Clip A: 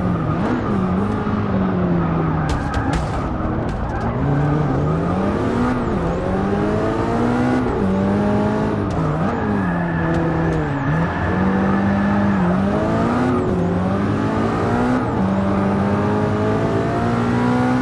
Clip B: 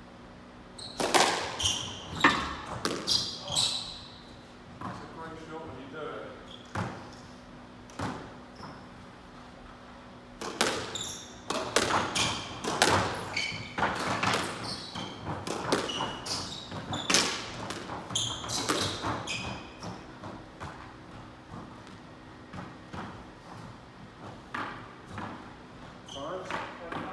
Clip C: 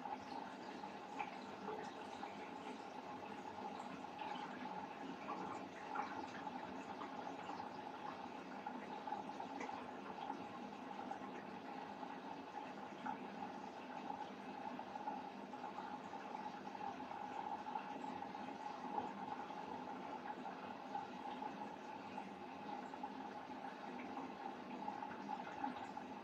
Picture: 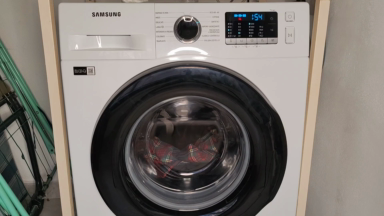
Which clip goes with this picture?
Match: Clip C